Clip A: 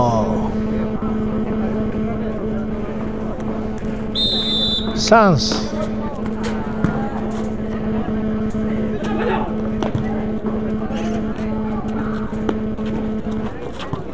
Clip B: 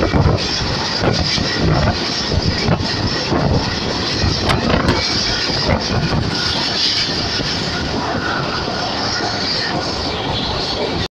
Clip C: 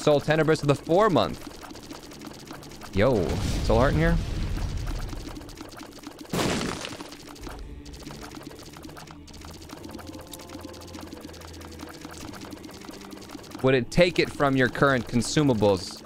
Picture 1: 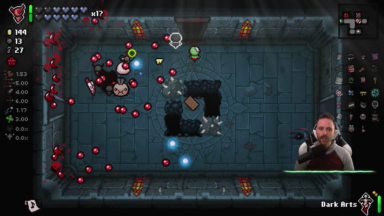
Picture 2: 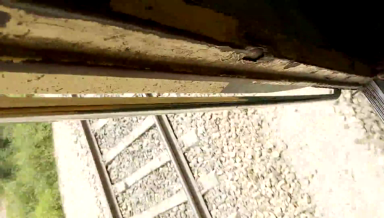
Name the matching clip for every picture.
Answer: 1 C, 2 B